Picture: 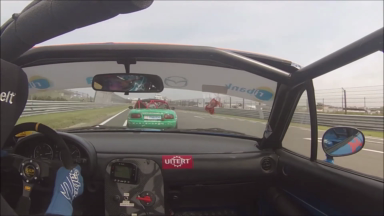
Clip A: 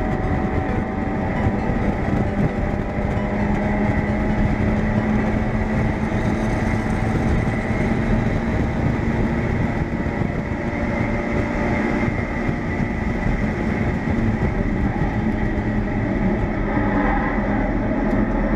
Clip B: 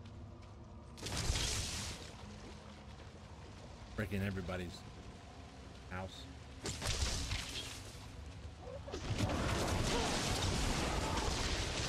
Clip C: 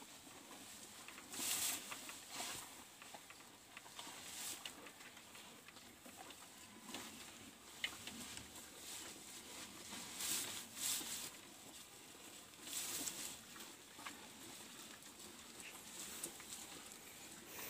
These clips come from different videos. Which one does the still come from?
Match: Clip A